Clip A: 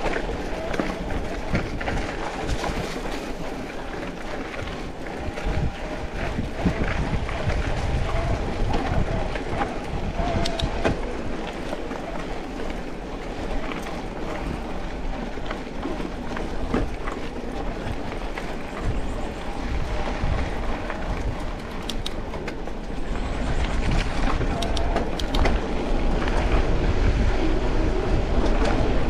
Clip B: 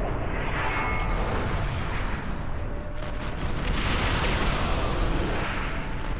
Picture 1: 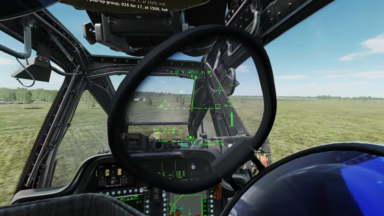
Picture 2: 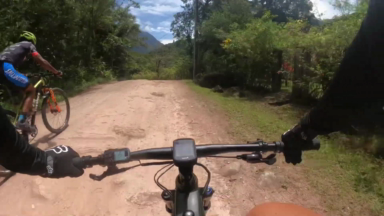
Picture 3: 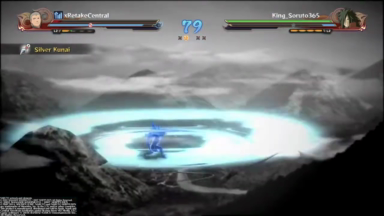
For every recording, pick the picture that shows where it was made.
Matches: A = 2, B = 3